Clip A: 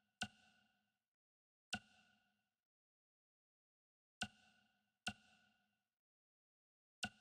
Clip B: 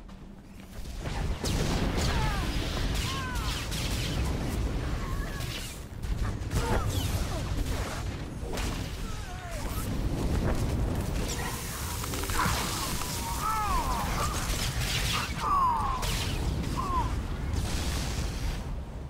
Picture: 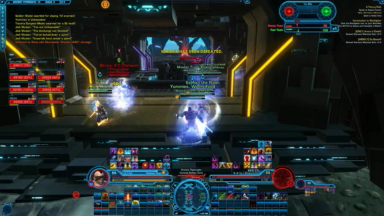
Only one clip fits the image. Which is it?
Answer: B